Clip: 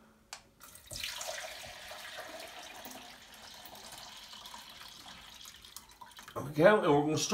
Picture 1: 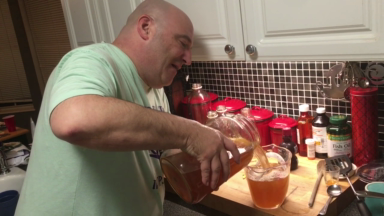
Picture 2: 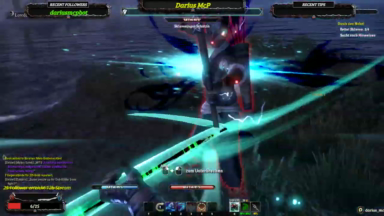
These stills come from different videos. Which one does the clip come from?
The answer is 1